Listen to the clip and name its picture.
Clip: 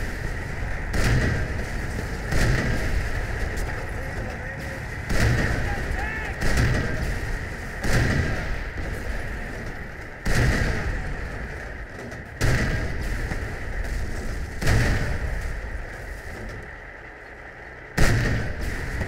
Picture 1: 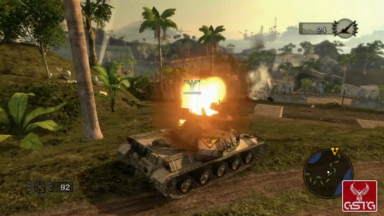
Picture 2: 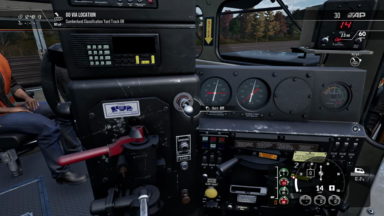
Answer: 1